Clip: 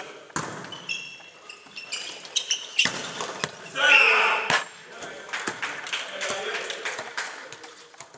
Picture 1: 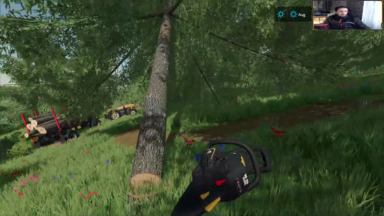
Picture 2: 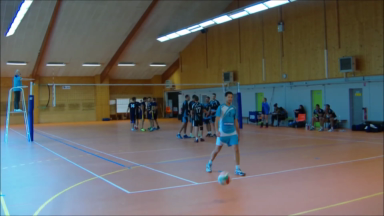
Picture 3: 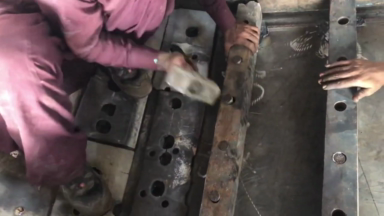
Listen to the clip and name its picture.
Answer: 2